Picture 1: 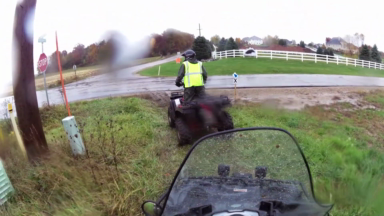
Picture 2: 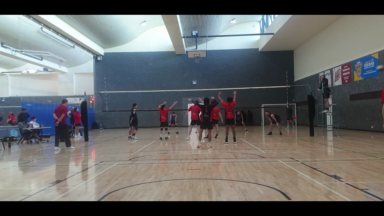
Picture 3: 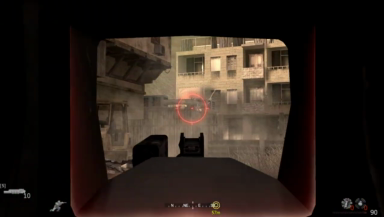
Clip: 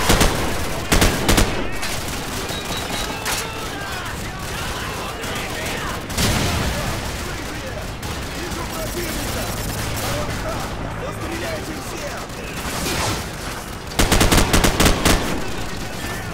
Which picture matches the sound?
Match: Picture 3